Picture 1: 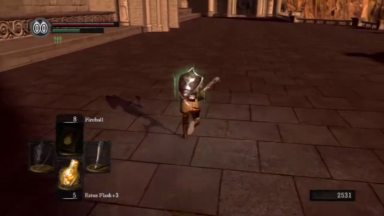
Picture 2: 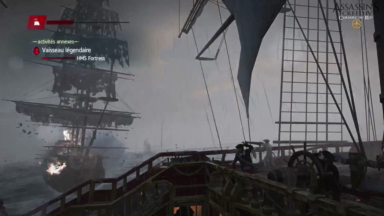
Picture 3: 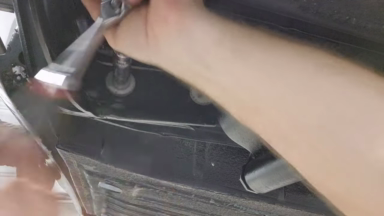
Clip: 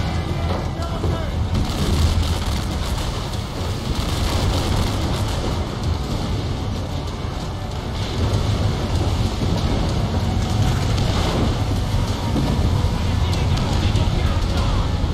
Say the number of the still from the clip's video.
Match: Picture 2